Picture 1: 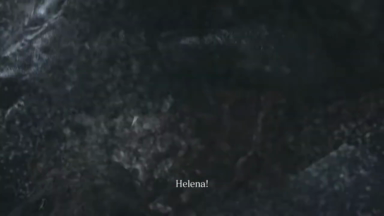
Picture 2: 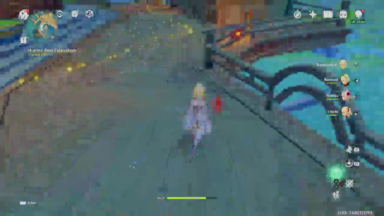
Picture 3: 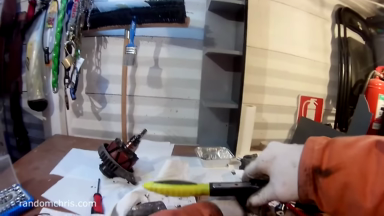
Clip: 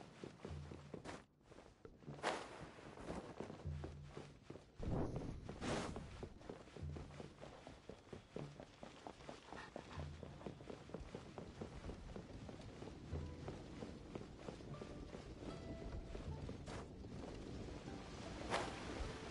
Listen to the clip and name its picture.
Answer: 2